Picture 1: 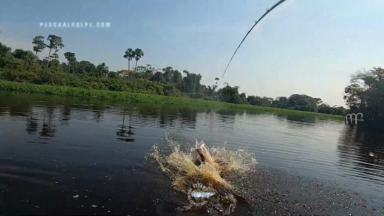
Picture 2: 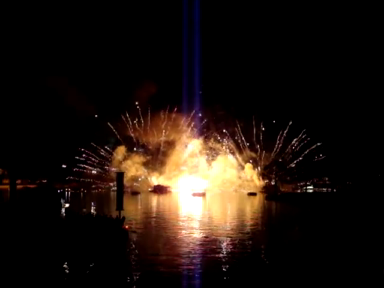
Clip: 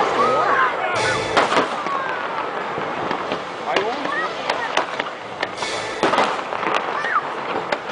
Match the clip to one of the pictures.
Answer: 2